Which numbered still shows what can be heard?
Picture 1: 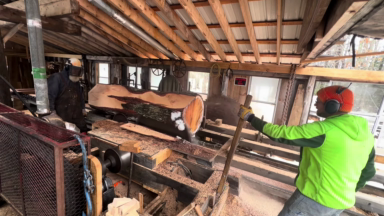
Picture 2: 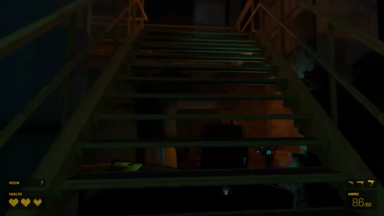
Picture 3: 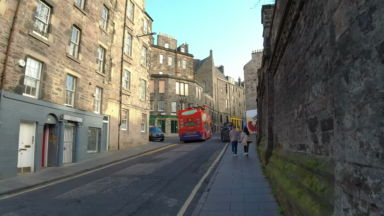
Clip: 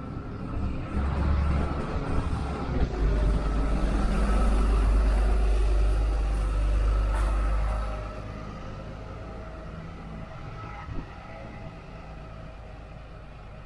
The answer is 3